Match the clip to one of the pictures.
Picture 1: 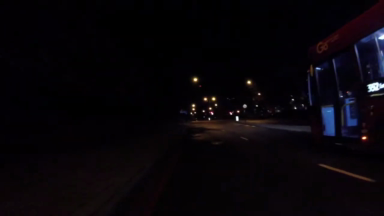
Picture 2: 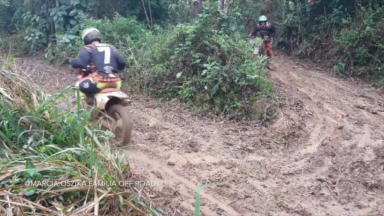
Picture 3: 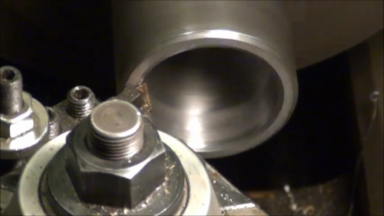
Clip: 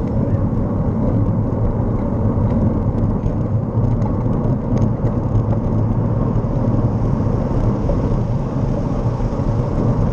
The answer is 1